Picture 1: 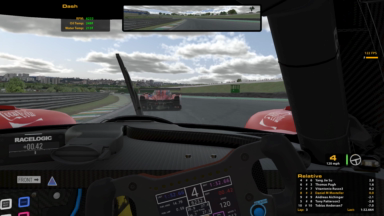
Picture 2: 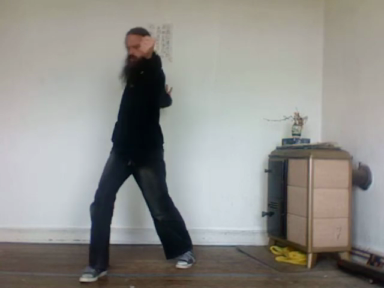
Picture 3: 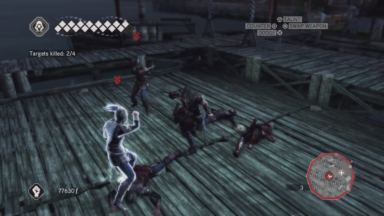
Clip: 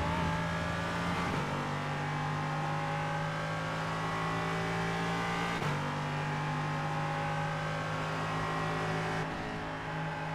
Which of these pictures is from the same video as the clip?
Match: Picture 1